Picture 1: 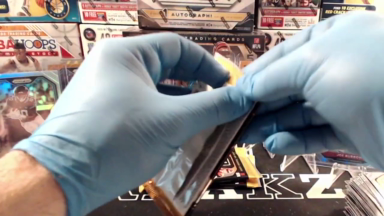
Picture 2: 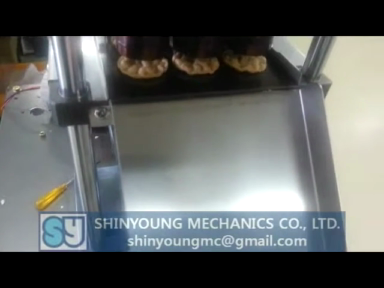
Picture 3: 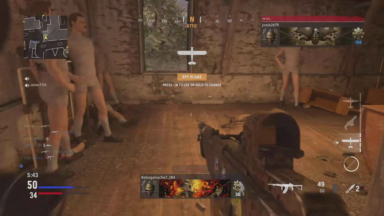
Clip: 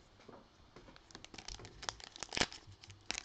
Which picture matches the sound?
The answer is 1